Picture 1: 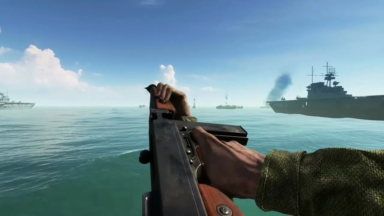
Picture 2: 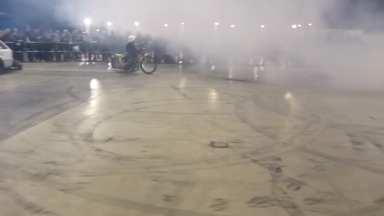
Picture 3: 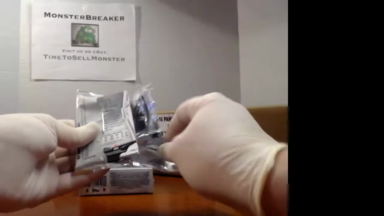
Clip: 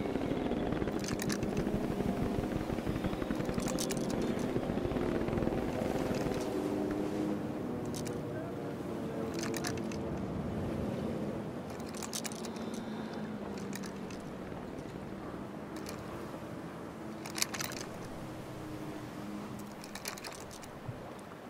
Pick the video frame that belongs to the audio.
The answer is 1